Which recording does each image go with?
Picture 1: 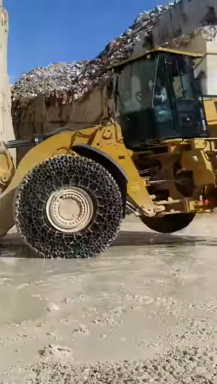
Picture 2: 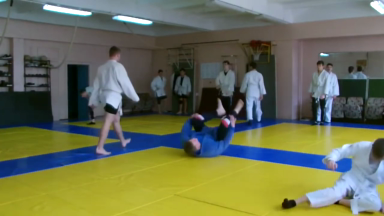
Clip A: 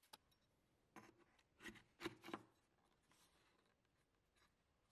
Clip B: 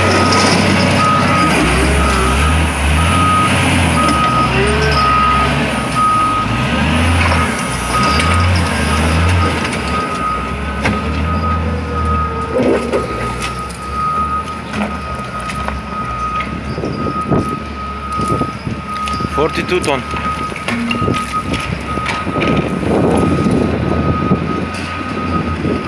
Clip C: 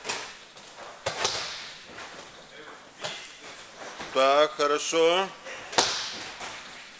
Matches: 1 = B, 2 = C